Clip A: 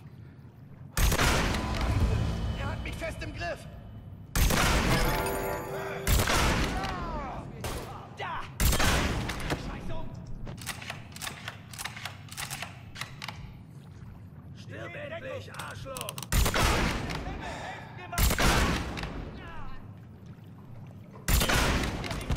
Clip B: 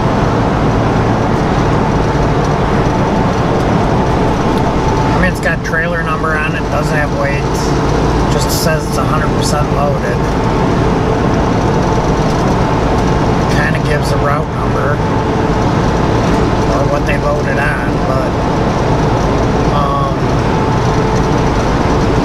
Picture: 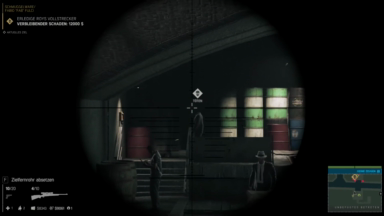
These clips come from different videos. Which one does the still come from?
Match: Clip A